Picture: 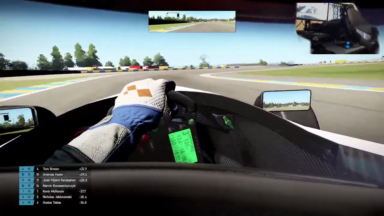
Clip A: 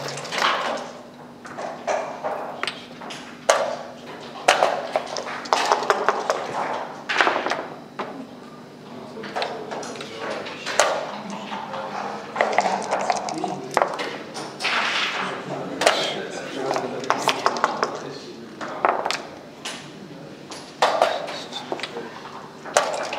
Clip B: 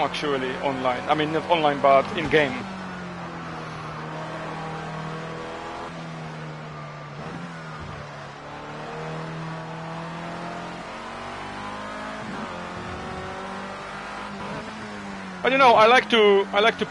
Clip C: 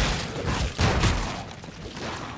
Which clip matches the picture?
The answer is B